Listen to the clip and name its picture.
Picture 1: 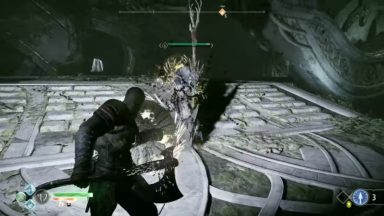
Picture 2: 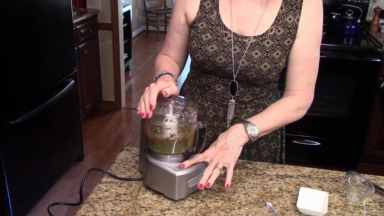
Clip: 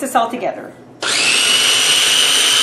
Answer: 2